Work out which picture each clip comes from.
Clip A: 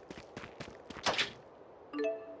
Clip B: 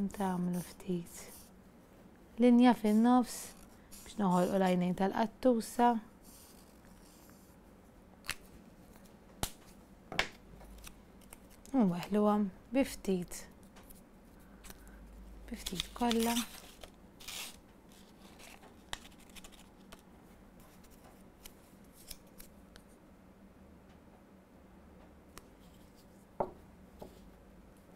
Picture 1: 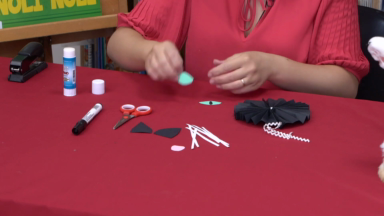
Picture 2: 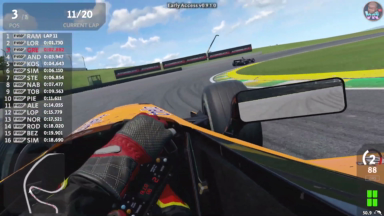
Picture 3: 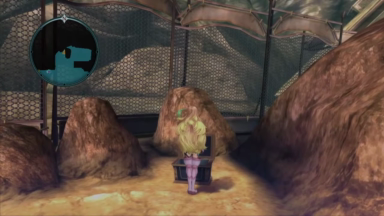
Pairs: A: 3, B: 1